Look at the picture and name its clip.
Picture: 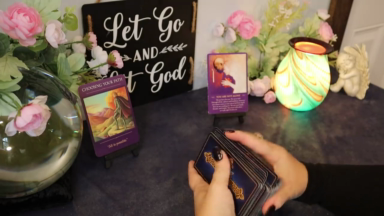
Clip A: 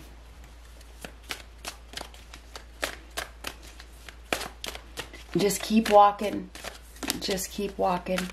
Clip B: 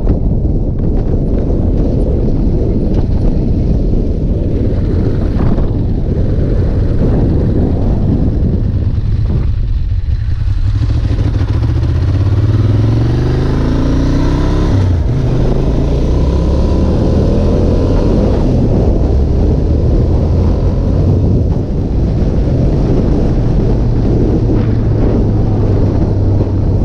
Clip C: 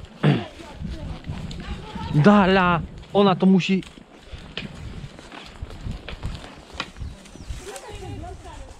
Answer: A